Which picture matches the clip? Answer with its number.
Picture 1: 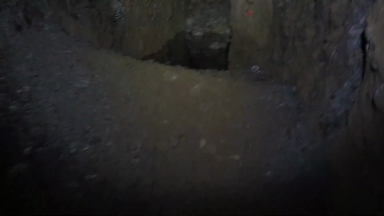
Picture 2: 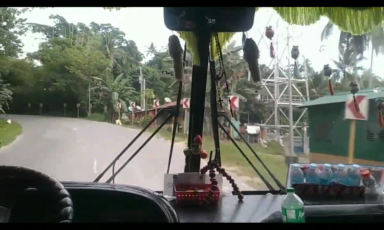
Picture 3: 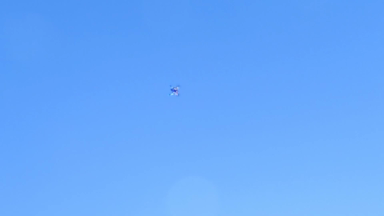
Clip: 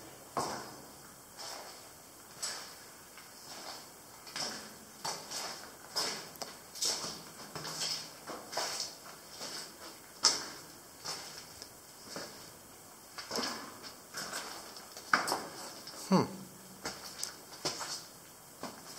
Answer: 1